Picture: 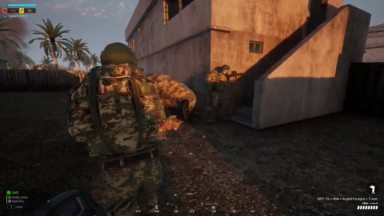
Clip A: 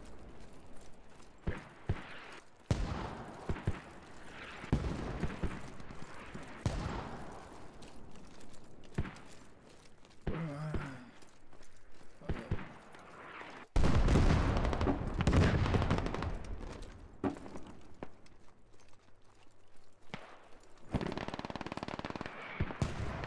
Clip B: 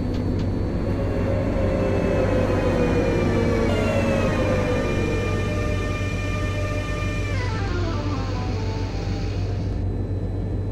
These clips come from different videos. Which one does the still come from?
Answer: A